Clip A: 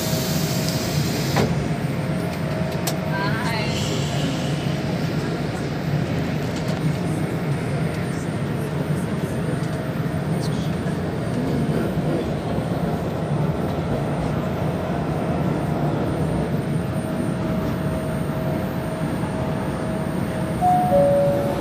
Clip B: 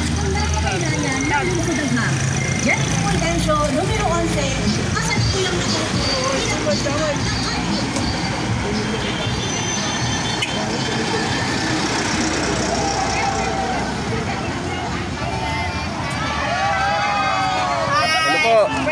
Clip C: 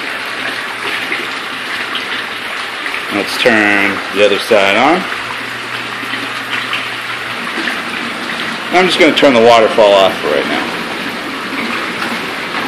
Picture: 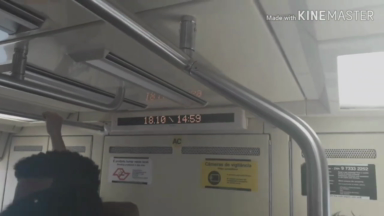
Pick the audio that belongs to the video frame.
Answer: A